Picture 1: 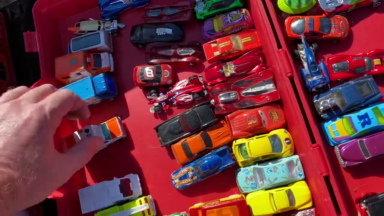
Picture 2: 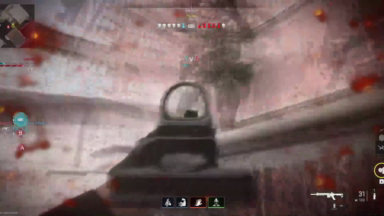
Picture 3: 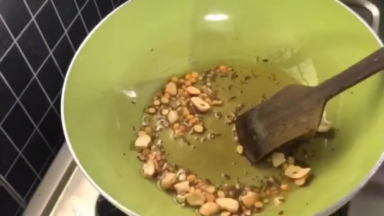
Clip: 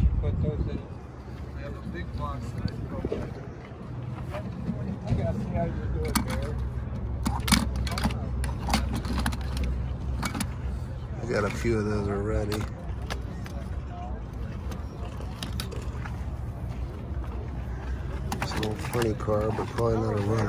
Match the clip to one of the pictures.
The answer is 1